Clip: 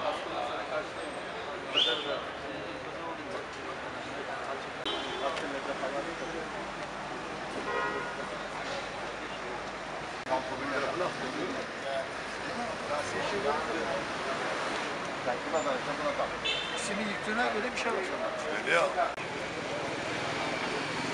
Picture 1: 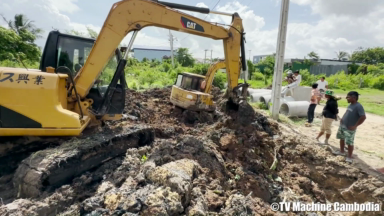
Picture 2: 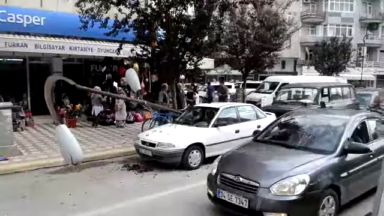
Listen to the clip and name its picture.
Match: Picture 2